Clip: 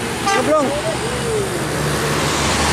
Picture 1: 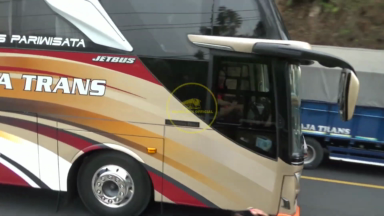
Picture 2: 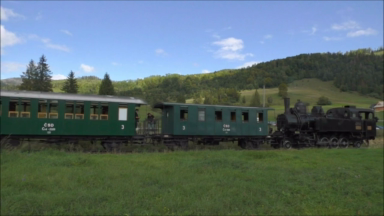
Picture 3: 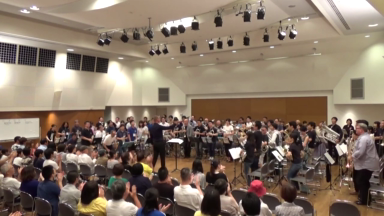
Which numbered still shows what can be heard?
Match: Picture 1